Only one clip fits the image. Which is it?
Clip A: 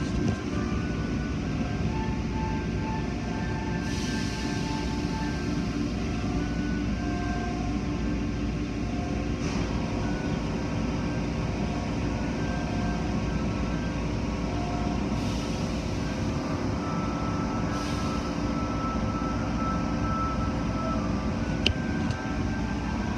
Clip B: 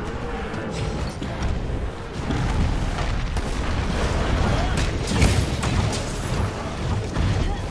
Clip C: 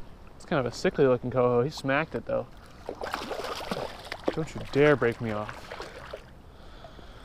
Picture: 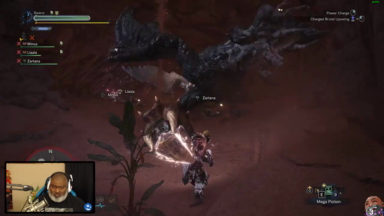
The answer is B